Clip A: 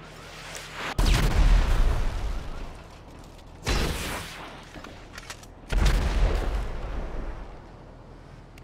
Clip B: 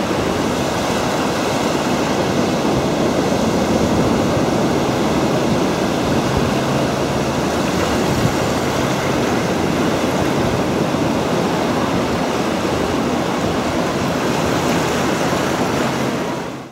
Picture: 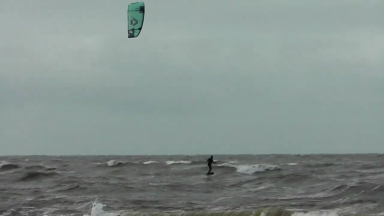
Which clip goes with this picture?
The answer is B